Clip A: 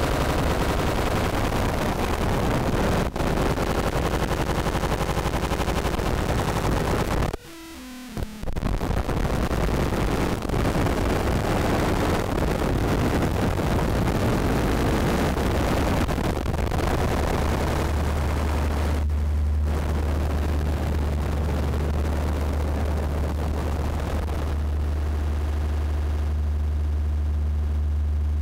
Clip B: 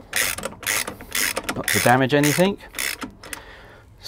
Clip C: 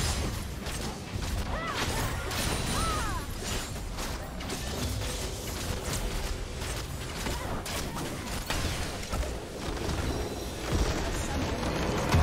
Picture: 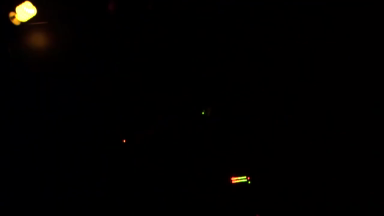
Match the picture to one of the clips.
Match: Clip A